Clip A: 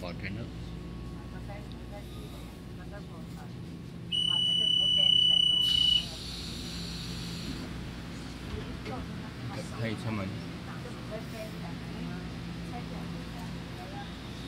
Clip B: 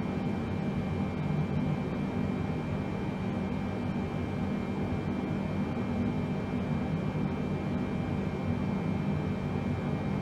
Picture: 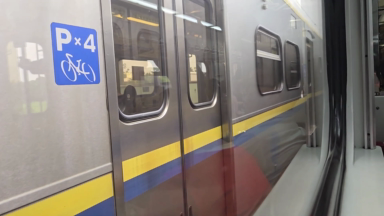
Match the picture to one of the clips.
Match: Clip A